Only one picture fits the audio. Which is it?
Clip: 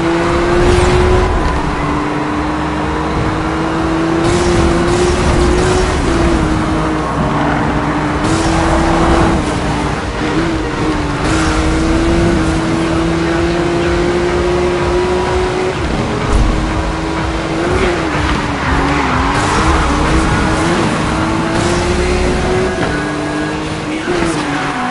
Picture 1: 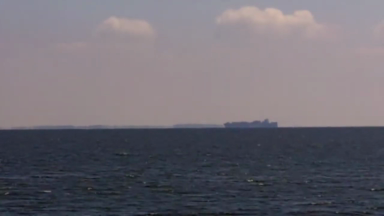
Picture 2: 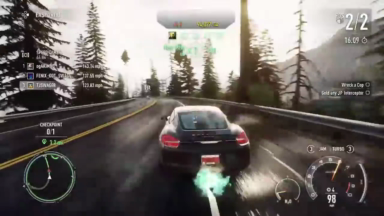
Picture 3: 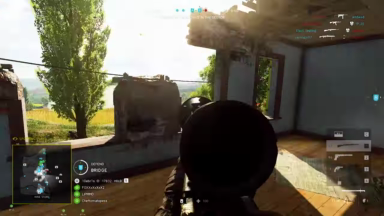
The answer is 2